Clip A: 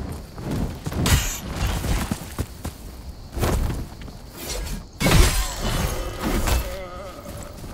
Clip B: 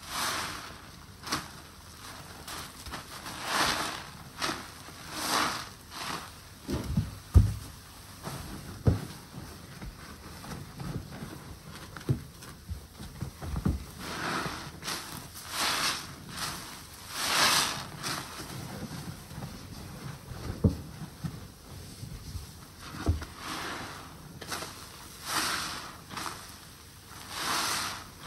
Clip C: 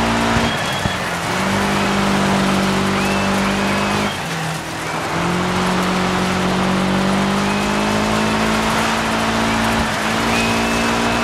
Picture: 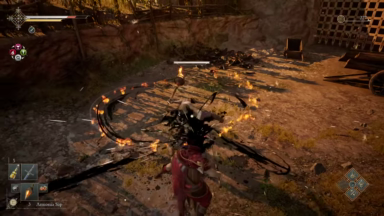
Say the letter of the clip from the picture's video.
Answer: A